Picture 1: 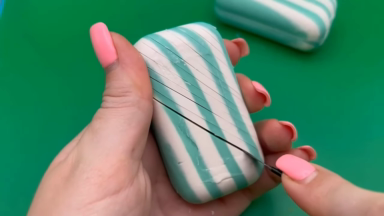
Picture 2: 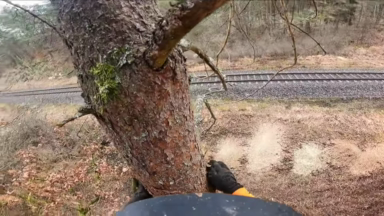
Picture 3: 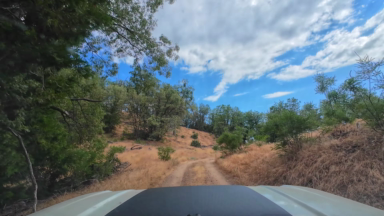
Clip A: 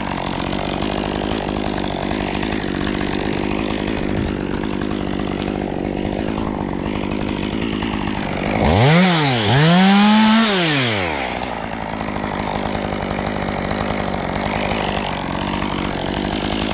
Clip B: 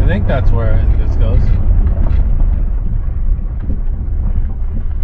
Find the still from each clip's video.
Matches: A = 2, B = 3